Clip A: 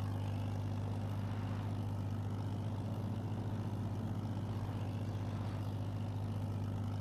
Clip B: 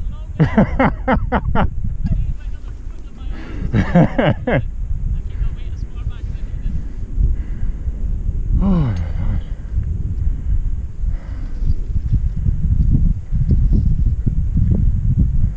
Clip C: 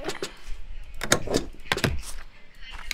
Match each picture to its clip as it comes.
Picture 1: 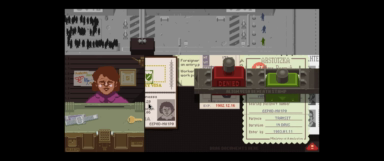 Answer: C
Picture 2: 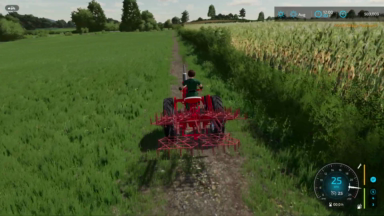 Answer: A